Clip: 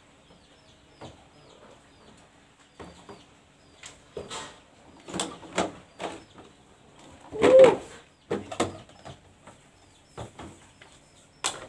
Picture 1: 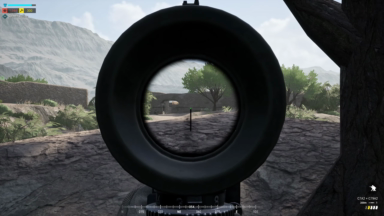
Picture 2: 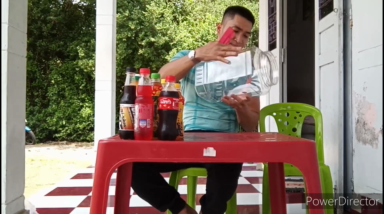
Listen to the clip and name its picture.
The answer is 2